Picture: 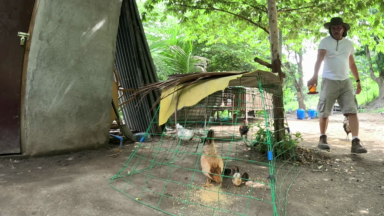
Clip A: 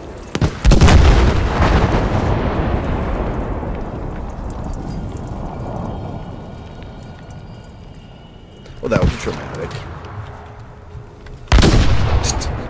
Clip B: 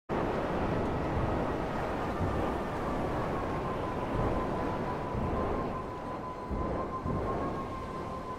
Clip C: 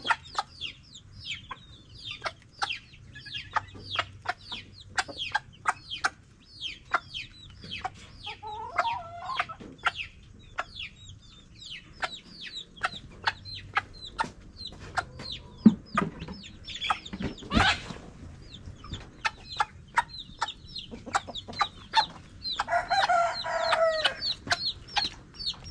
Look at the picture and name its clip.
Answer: C